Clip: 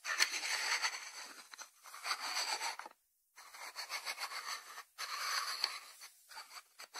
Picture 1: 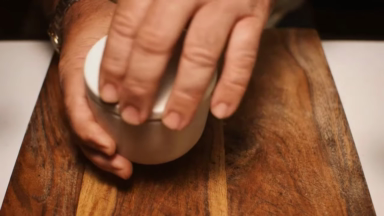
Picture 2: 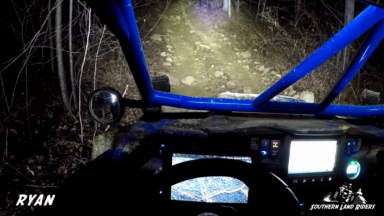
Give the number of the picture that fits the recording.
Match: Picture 1